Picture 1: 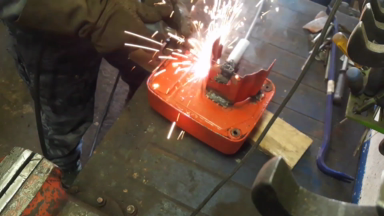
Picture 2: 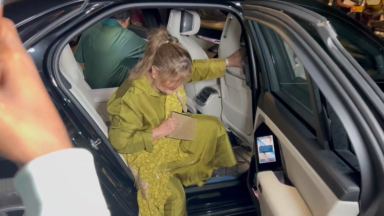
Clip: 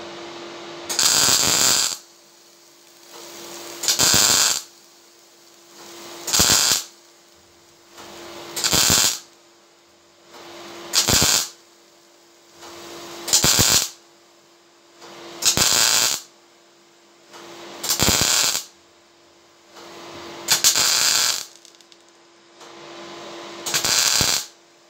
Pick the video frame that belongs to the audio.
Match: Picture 1